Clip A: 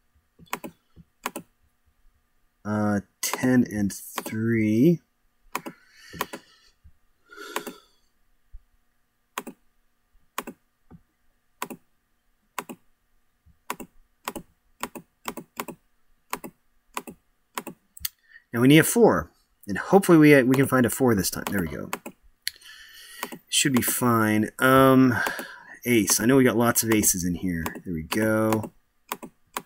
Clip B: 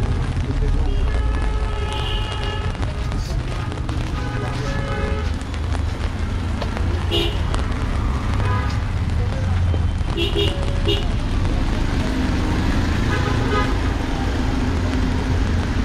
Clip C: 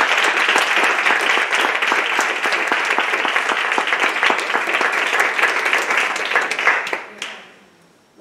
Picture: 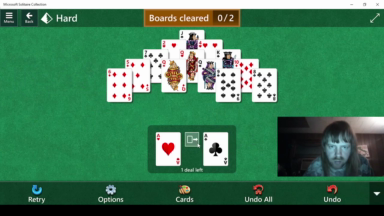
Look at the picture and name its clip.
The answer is A